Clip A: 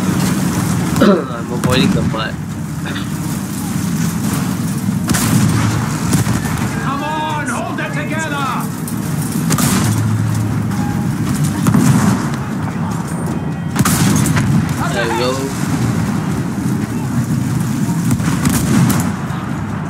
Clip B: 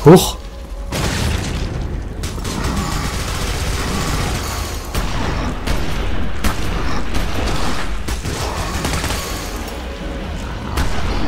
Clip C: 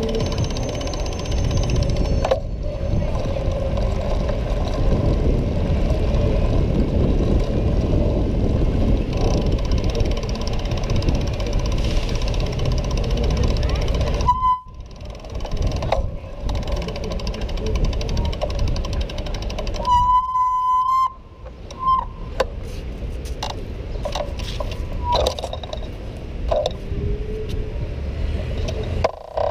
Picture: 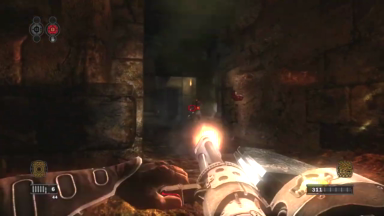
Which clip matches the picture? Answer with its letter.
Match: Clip B